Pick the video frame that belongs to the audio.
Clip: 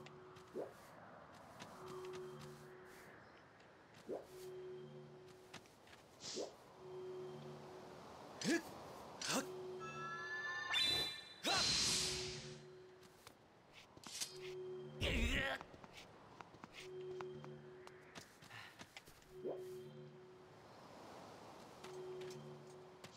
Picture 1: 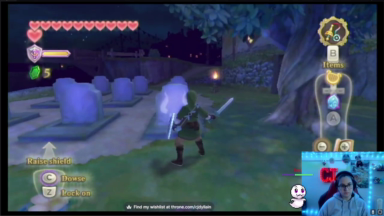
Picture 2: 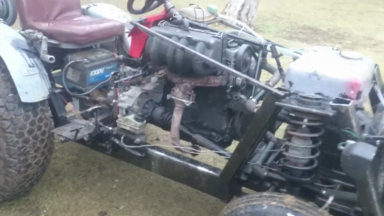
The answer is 1